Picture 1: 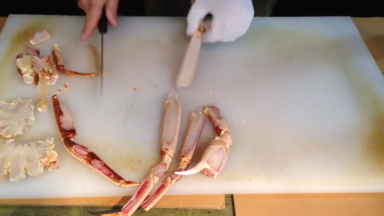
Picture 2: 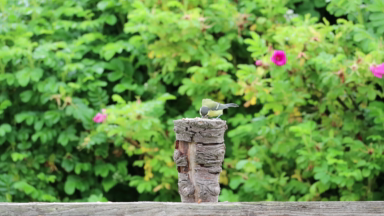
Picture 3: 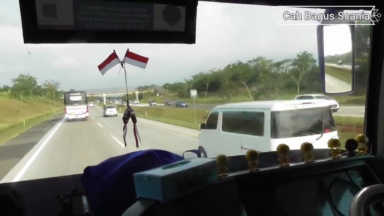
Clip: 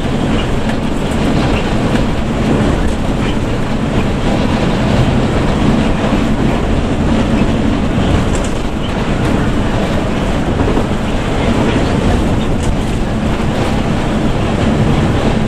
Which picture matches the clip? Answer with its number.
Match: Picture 3